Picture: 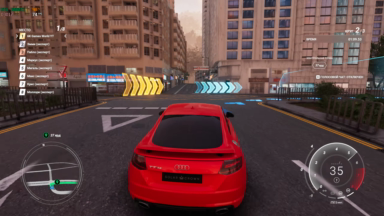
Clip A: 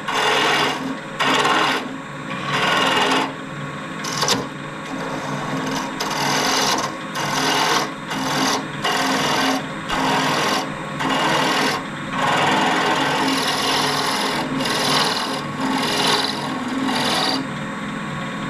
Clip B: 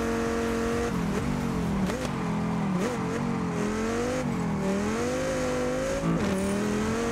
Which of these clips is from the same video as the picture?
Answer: B